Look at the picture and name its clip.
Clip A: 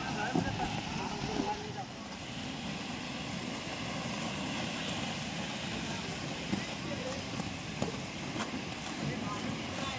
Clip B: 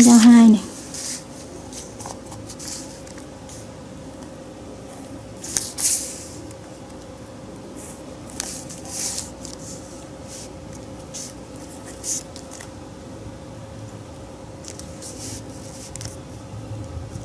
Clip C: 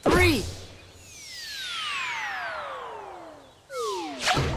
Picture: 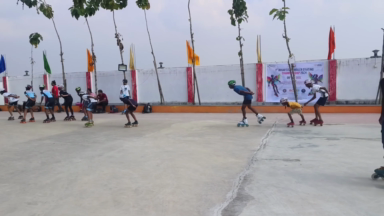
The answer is A